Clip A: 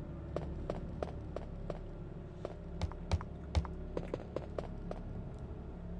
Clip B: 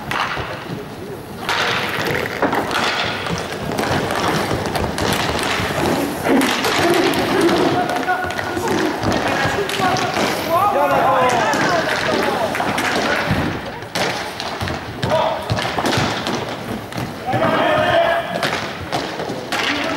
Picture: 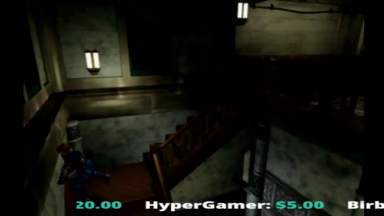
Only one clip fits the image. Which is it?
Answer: A